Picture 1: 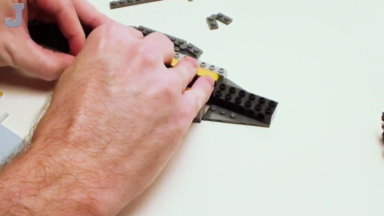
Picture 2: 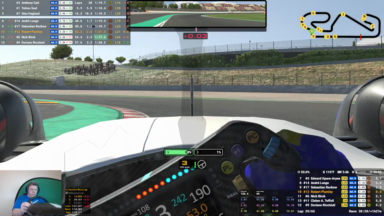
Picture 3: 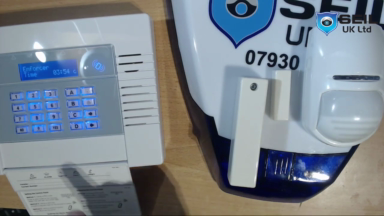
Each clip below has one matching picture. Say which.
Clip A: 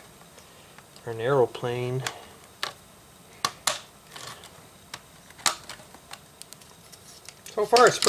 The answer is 1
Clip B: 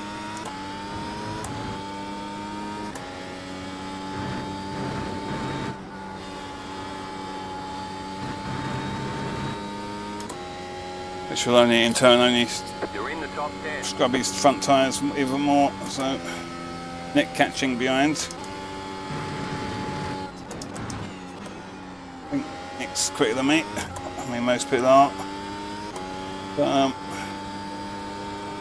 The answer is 2